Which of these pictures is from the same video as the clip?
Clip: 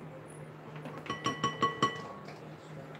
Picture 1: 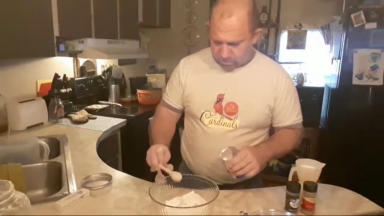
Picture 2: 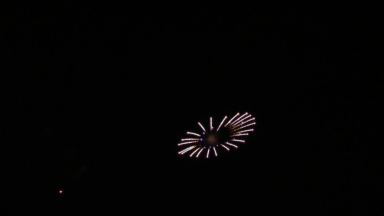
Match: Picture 1